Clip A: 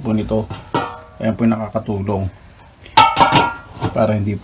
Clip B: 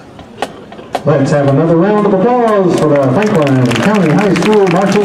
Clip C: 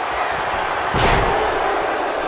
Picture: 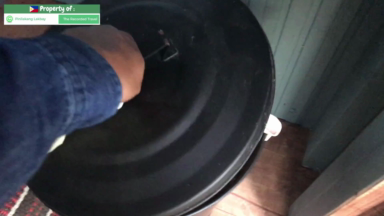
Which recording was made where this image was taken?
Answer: A